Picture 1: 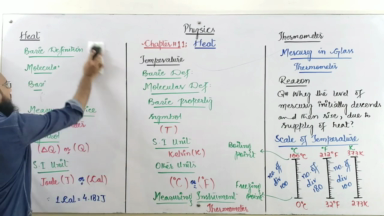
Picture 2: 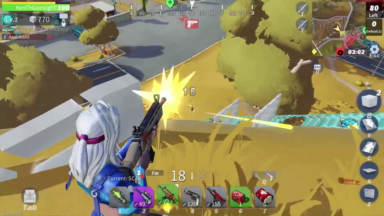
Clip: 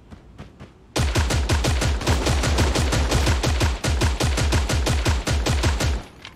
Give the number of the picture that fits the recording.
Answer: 2